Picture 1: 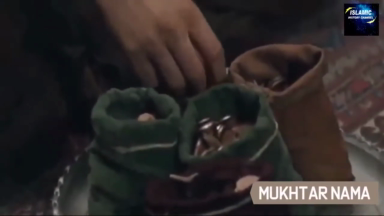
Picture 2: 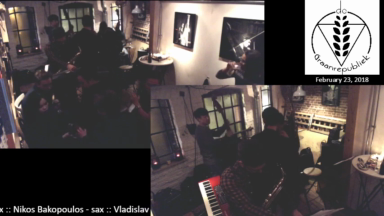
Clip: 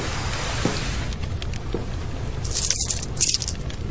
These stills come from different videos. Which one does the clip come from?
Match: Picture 1